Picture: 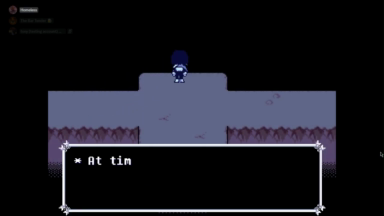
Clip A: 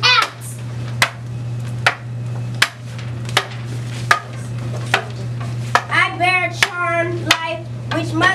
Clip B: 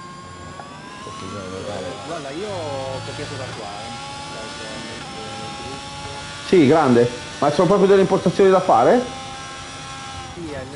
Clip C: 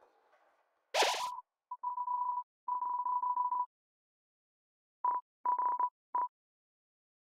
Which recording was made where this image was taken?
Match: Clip C